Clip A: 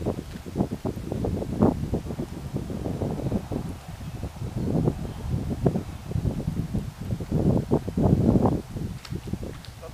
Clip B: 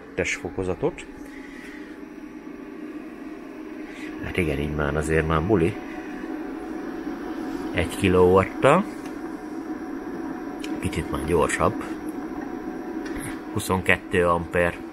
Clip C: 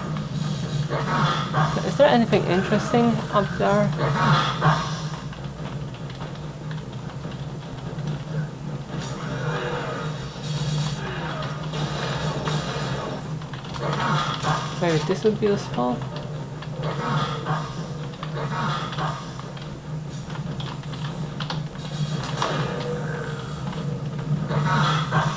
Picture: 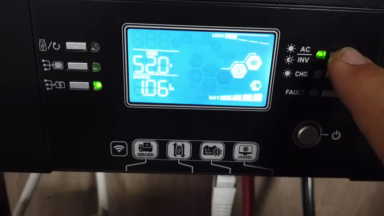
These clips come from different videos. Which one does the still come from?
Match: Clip B